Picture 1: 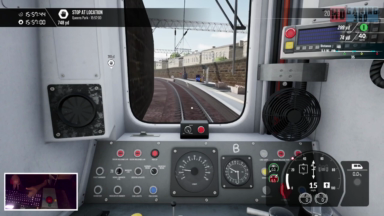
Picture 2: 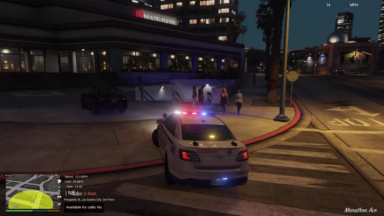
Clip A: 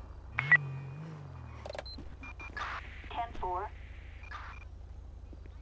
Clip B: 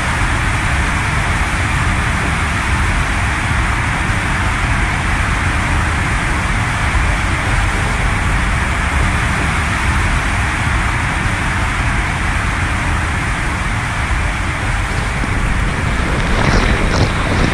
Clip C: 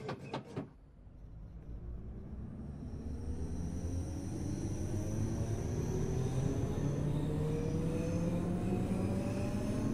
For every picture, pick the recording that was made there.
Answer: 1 C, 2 A